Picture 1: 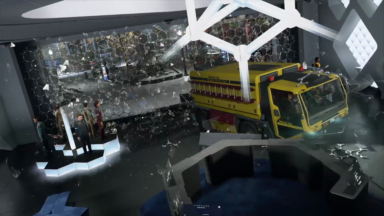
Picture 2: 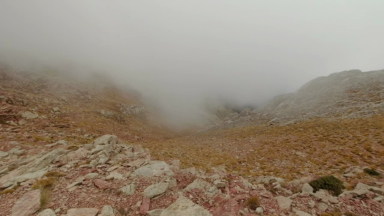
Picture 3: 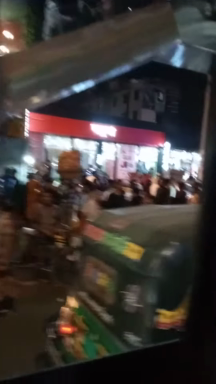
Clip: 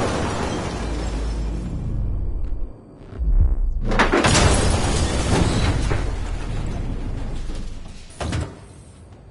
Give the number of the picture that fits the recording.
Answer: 1